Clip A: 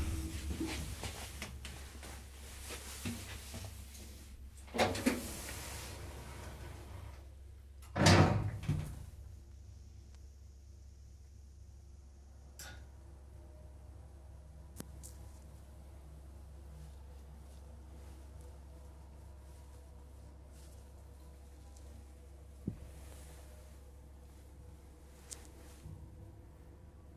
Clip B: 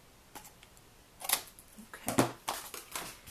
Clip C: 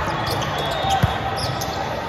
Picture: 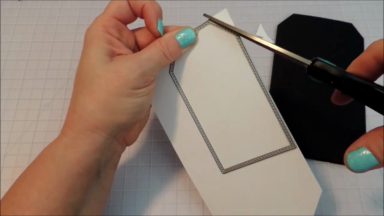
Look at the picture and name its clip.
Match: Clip B